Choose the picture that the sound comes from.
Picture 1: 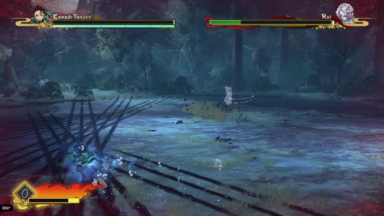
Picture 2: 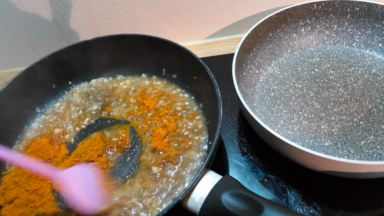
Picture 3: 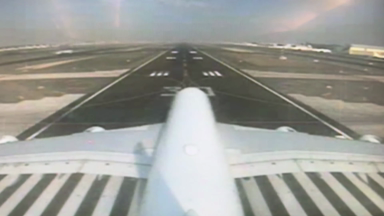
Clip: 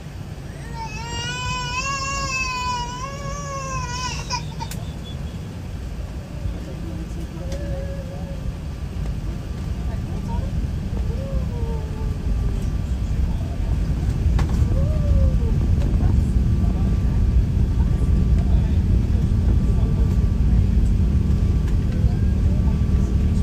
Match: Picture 3